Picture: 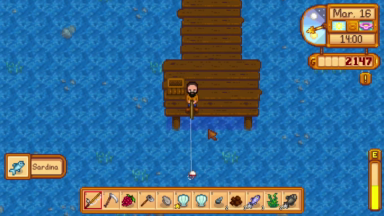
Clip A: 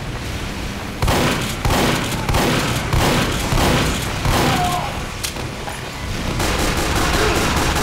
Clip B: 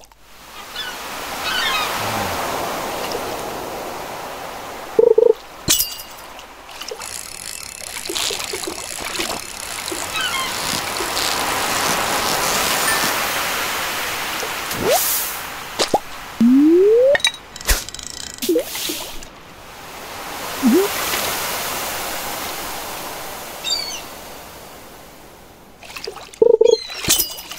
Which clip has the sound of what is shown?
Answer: B